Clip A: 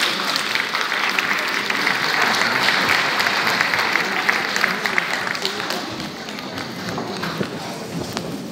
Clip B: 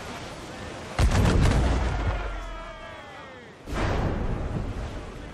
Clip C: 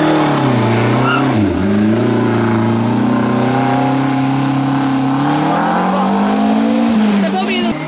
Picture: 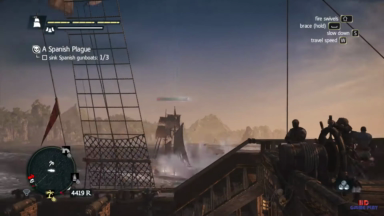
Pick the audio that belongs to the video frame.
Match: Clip B